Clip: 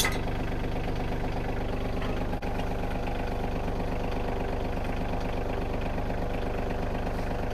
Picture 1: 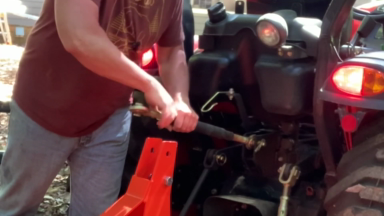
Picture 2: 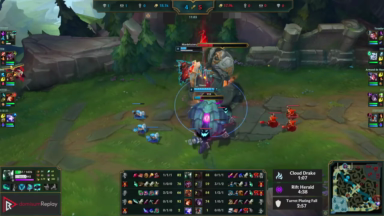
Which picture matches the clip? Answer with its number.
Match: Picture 1